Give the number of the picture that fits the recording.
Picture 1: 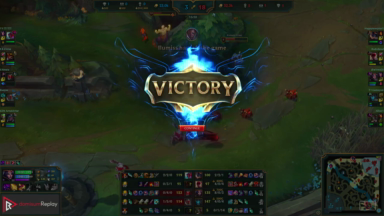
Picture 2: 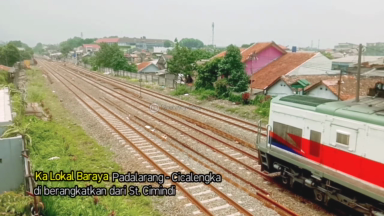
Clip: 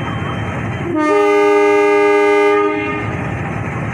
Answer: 2